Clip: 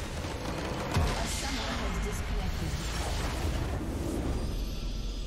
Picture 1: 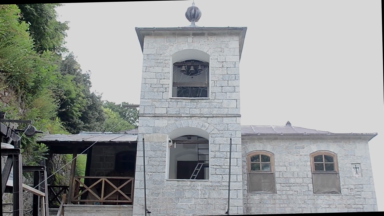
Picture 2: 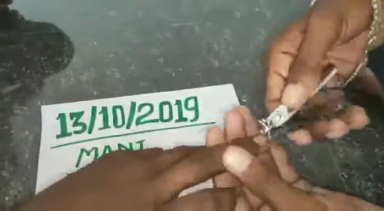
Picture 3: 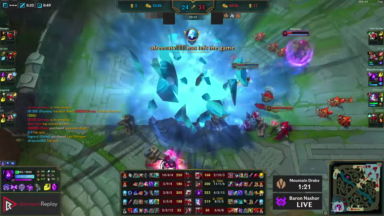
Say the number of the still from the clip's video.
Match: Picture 3